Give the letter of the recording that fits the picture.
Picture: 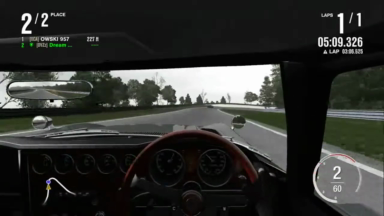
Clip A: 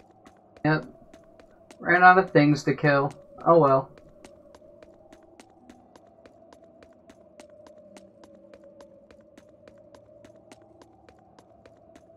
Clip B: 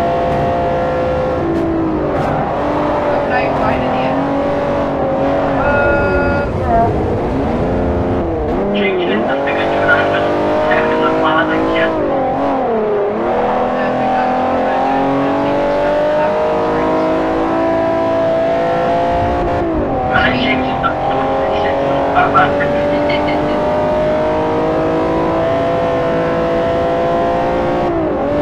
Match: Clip B